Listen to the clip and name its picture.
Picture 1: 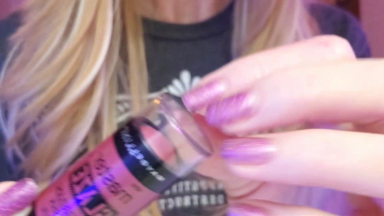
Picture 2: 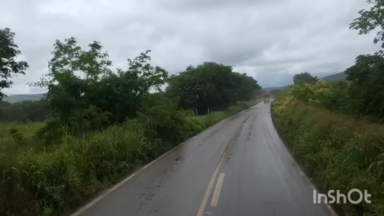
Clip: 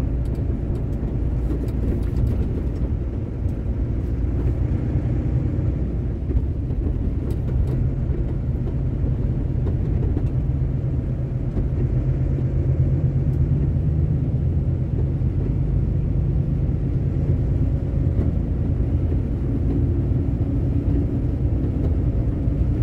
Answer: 2